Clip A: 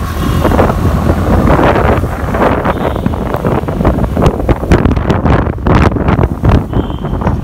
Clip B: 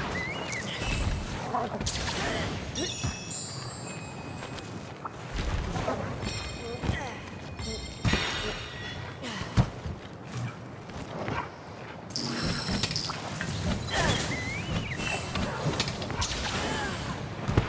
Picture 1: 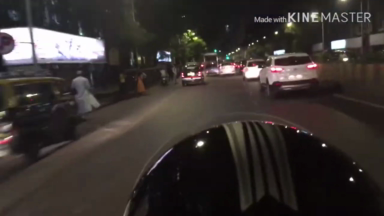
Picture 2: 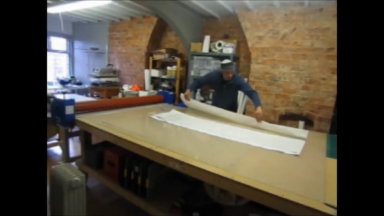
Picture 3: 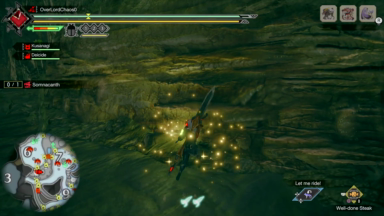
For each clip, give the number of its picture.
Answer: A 1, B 3